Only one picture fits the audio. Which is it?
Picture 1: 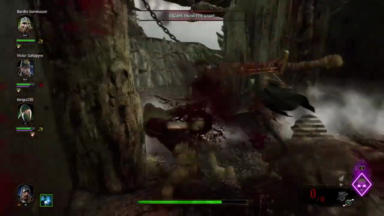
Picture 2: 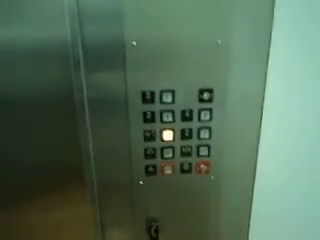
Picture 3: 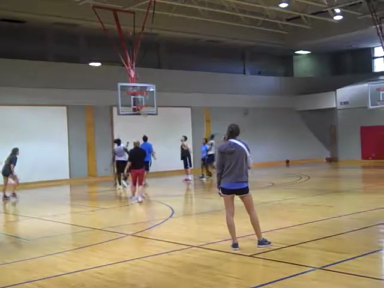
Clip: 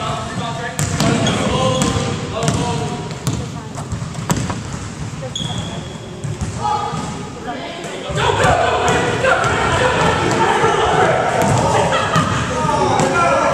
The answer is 3